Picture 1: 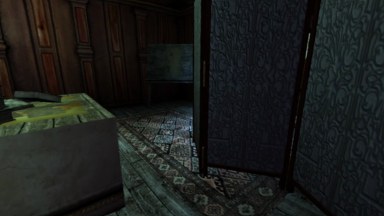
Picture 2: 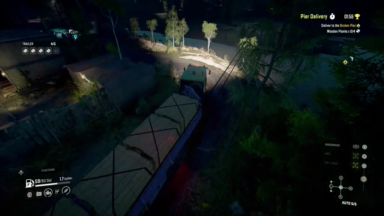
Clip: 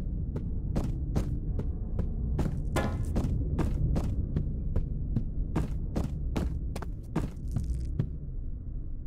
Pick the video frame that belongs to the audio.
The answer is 1